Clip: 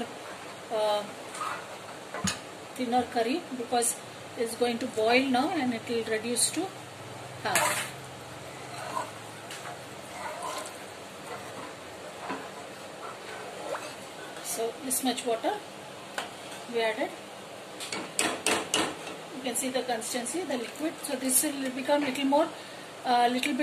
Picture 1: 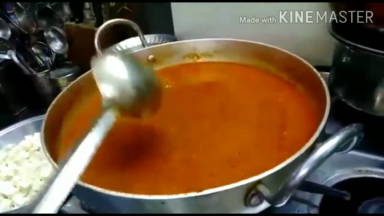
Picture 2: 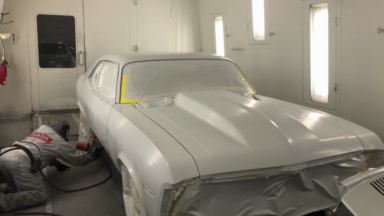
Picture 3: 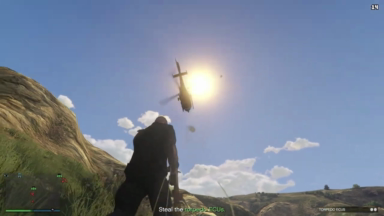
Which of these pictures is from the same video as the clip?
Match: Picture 1